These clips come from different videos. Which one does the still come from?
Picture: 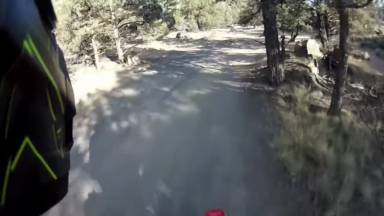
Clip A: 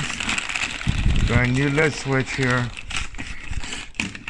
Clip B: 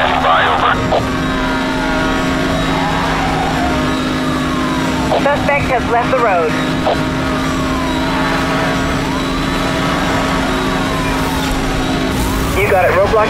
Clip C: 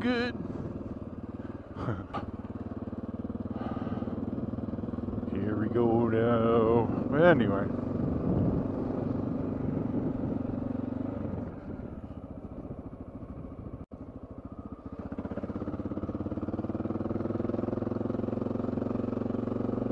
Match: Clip C